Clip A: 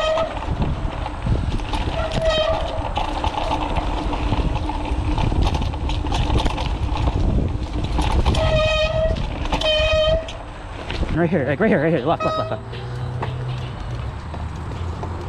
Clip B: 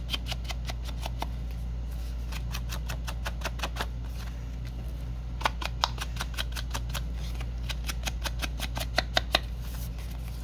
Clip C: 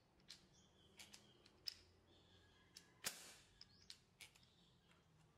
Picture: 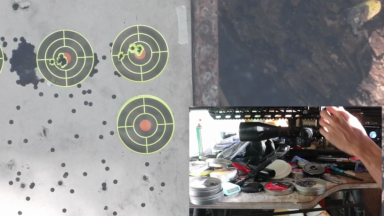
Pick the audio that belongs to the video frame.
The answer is C